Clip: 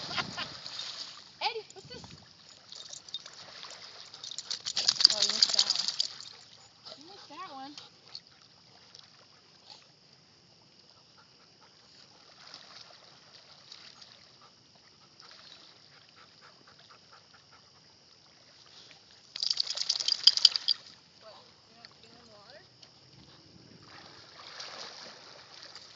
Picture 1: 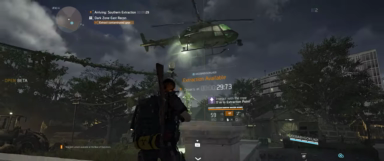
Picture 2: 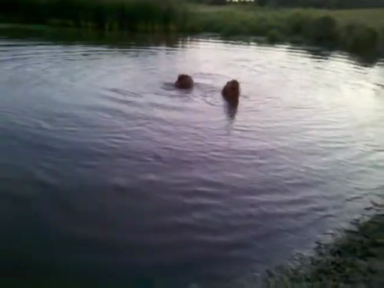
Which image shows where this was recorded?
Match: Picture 2